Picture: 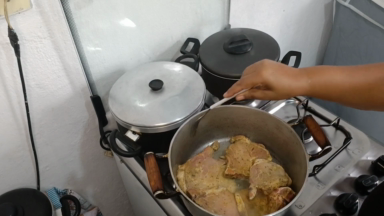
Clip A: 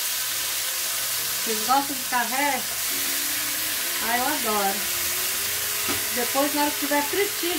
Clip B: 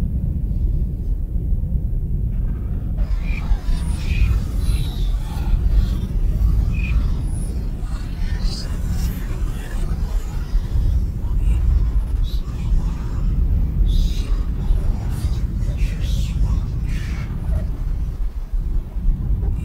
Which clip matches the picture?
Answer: A